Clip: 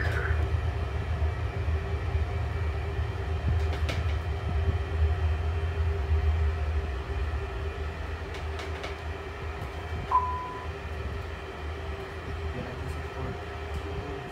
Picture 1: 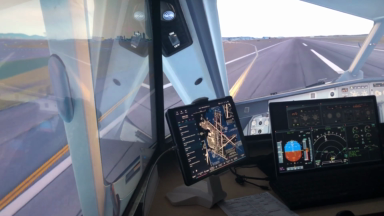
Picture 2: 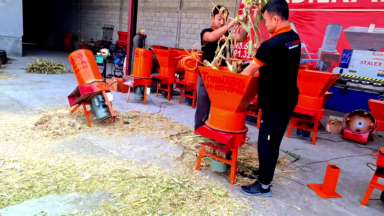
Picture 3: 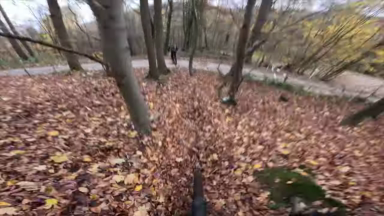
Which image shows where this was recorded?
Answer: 1